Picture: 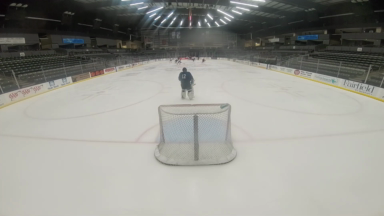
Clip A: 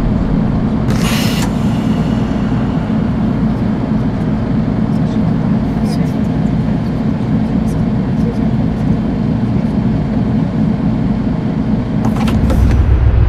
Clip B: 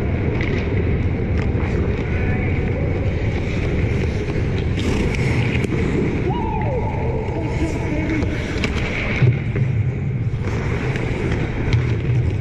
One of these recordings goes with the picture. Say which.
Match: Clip B